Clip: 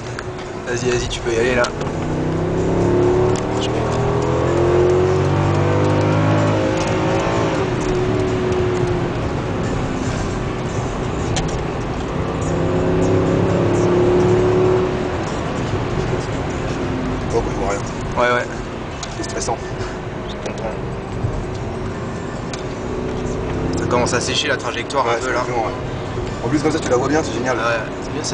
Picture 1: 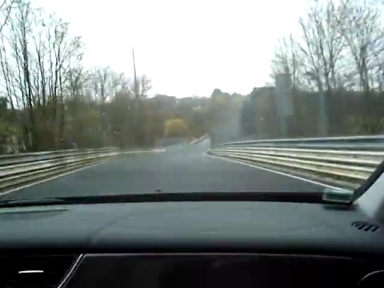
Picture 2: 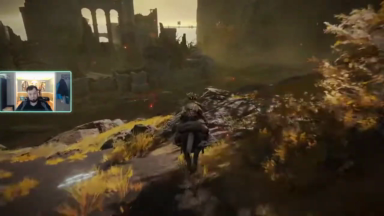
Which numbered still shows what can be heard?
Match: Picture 1